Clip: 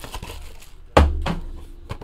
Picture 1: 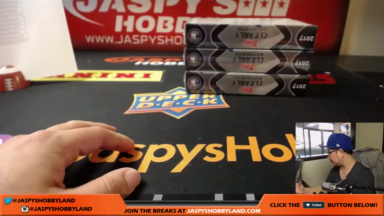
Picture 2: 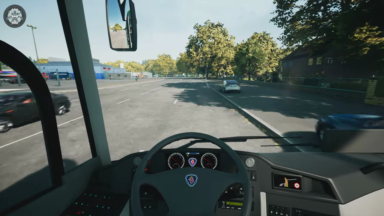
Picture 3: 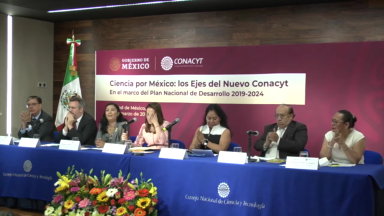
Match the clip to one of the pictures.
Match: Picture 1